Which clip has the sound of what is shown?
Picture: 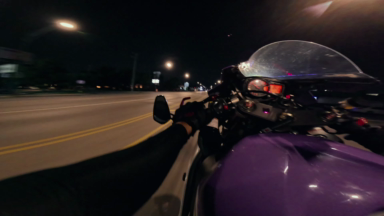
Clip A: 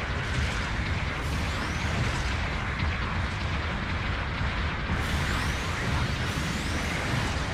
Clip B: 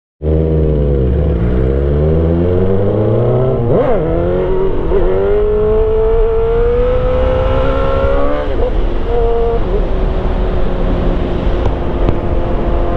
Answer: B